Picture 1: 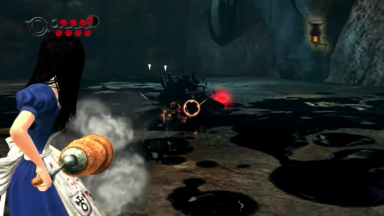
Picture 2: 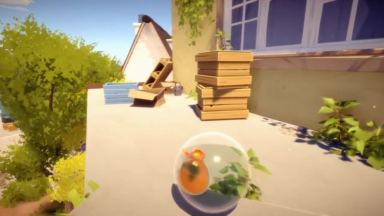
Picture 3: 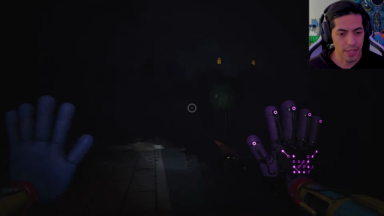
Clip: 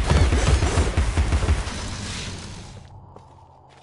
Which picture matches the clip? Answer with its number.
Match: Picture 1